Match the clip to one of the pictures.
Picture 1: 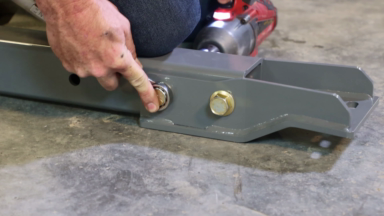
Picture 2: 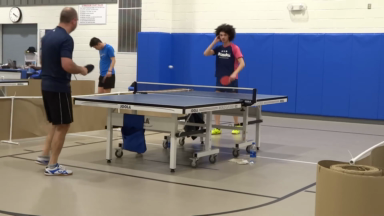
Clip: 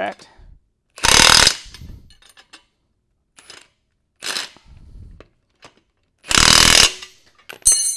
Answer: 1